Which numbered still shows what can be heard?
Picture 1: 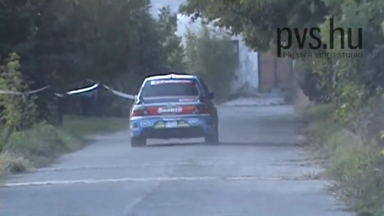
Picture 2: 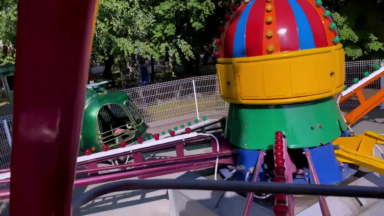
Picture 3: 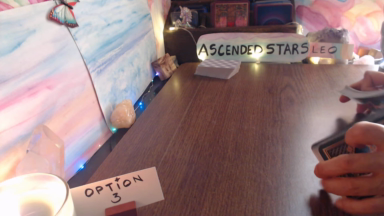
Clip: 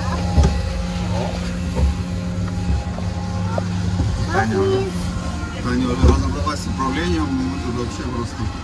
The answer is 2